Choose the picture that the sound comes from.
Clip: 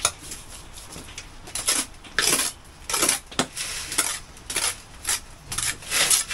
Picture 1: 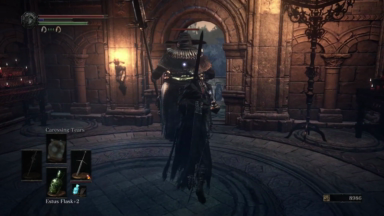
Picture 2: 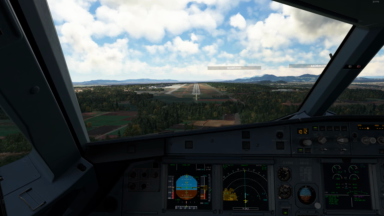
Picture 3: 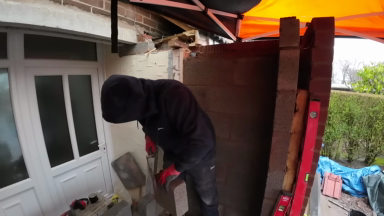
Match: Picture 3